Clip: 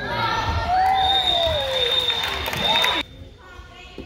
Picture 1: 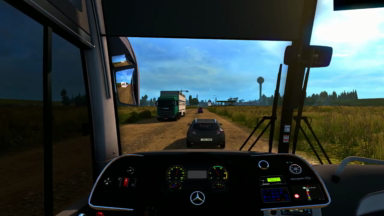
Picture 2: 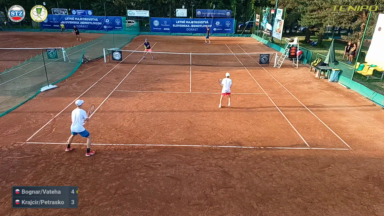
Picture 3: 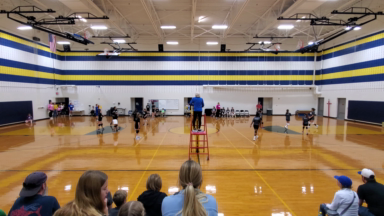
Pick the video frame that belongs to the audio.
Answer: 3